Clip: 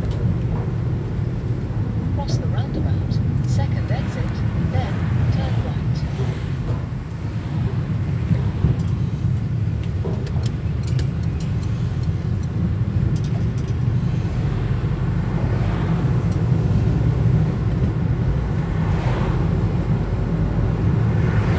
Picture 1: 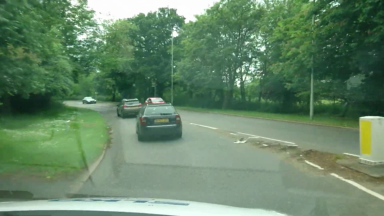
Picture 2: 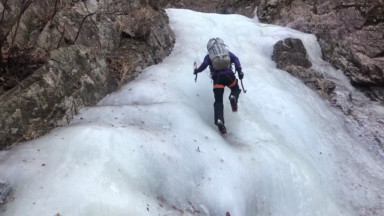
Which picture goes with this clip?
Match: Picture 1